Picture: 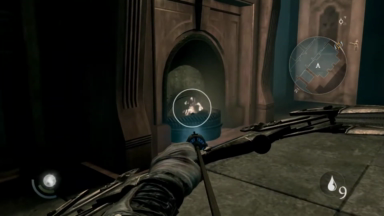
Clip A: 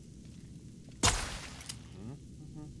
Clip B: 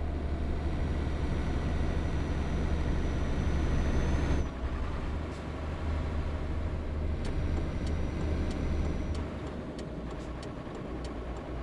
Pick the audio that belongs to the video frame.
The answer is A